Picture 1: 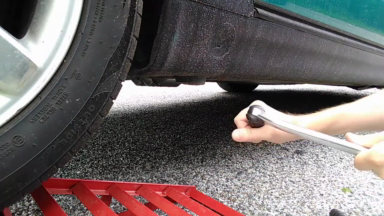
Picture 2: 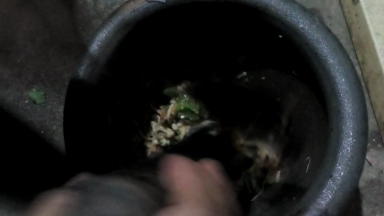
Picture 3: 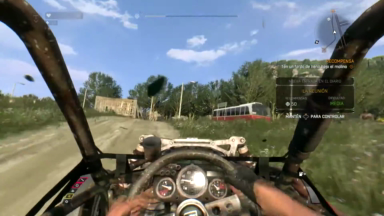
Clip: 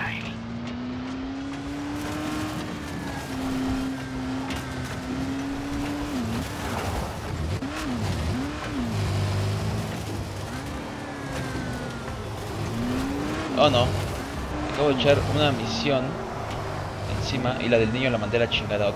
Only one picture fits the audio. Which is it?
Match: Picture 3